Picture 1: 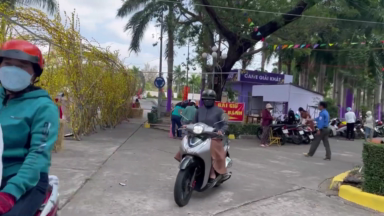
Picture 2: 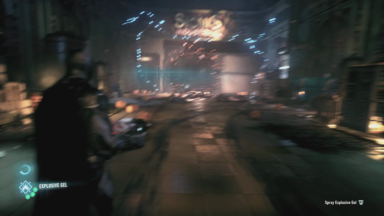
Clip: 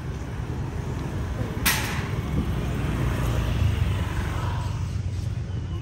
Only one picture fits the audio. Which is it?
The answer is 1